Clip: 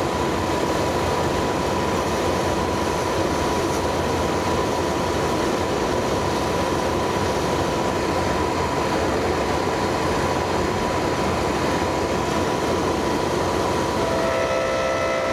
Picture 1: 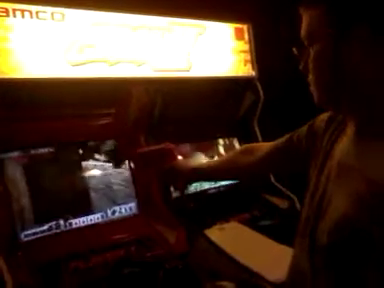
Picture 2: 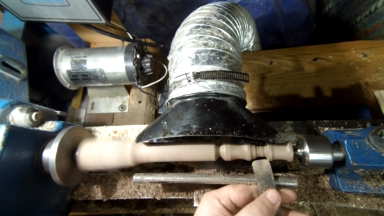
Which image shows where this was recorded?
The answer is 2